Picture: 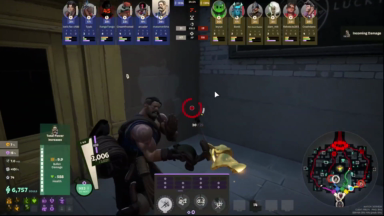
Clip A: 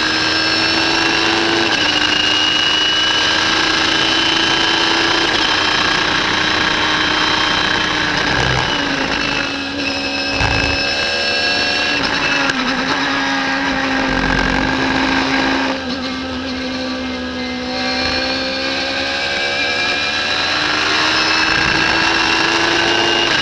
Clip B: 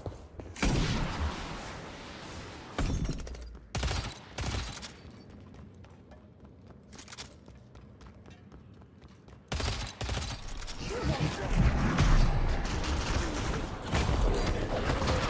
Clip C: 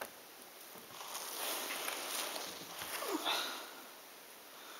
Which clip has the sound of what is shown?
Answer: B